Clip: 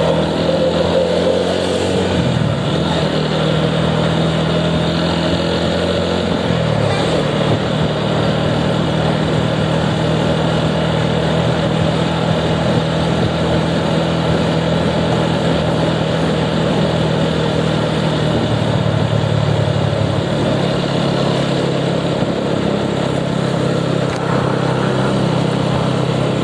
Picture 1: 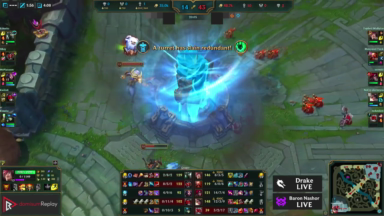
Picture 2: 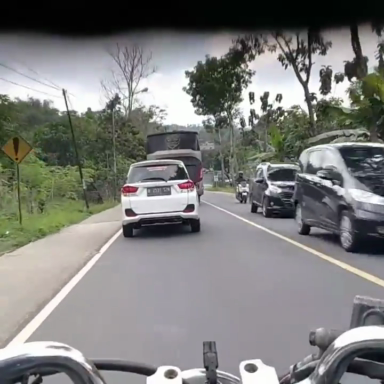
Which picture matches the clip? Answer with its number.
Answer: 2